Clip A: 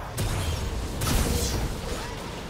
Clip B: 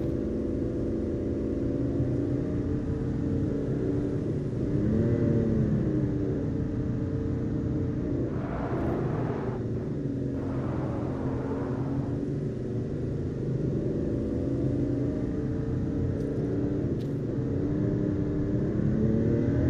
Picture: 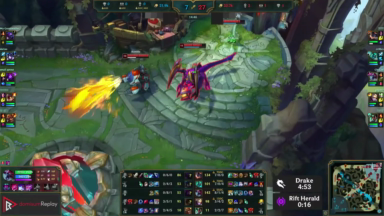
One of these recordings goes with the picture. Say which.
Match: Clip A